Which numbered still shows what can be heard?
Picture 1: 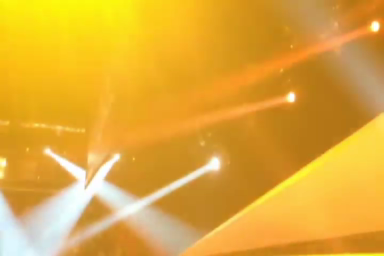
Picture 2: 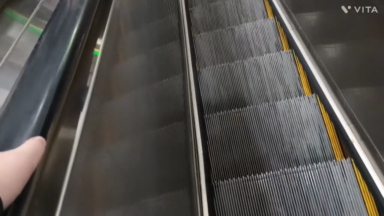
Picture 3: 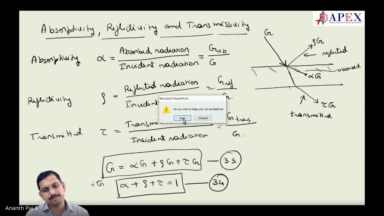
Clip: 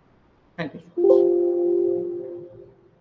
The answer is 3